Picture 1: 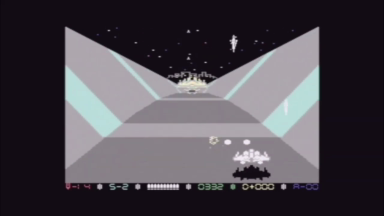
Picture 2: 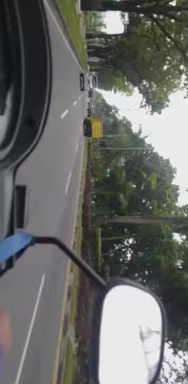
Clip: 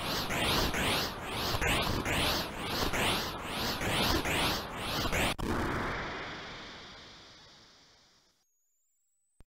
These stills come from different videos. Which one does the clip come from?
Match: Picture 1